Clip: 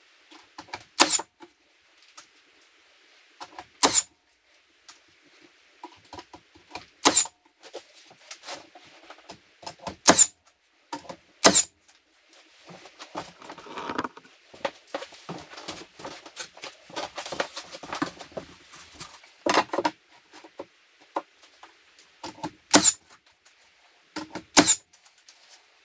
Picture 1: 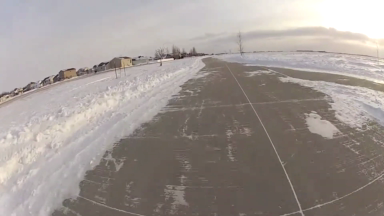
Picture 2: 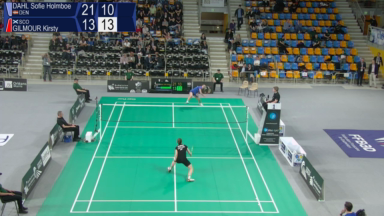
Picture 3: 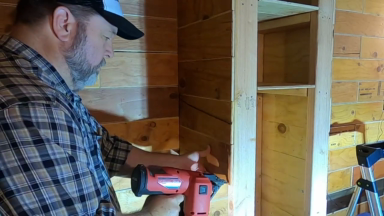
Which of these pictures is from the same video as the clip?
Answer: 3